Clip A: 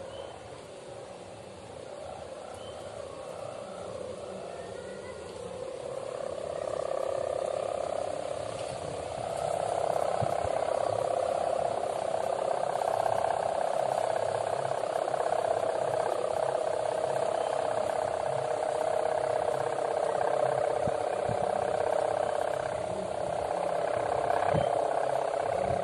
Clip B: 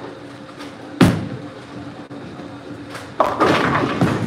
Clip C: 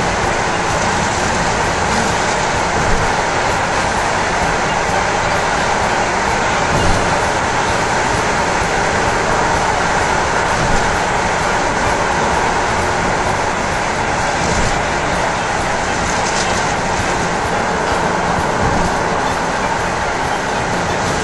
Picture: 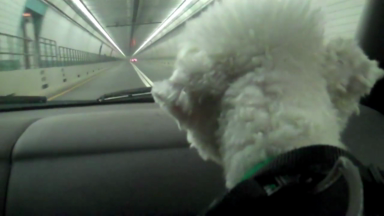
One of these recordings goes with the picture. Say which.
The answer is C